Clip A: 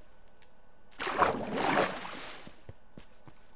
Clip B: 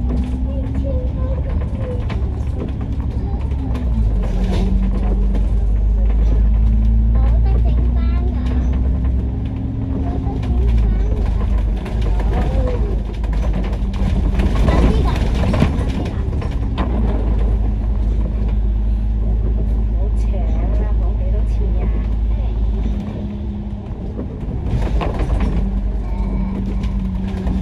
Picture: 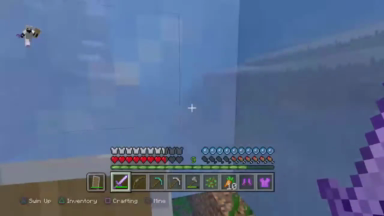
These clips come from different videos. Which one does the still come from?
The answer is A